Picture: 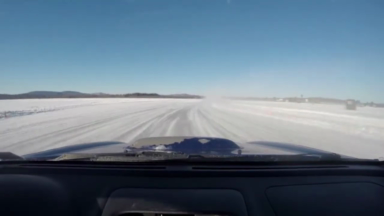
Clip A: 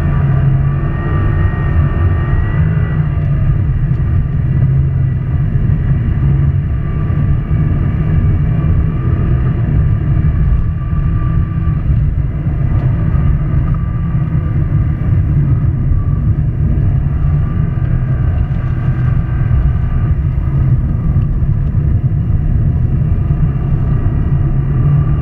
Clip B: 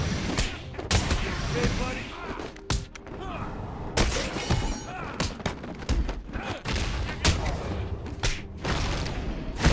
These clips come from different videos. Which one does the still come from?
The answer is A